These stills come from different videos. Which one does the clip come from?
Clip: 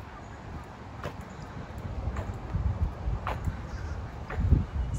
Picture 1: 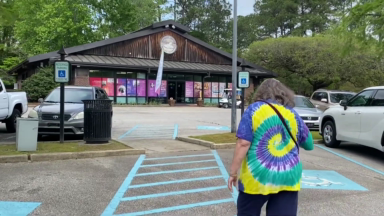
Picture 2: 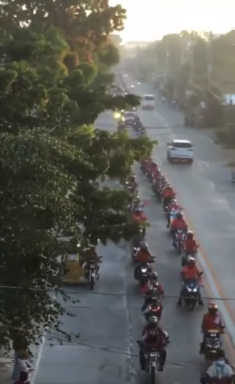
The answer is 1